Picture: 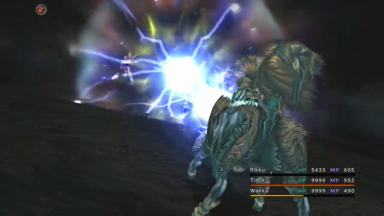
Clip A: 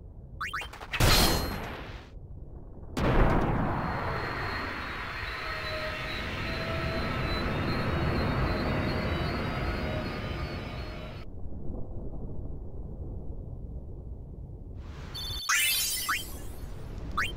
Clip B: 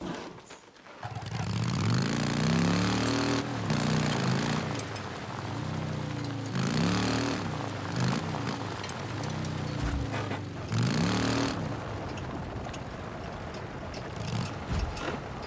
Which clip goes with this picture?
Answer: A